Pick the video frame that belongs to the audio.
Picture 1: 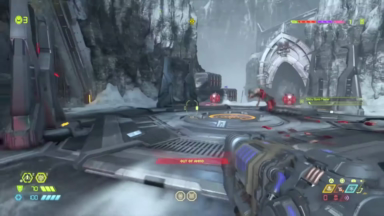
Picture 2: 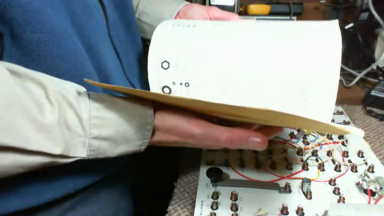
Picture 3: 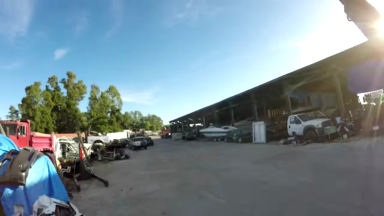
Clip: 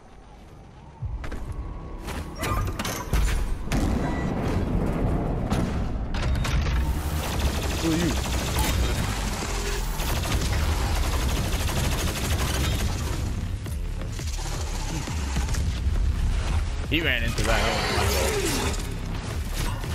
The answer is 1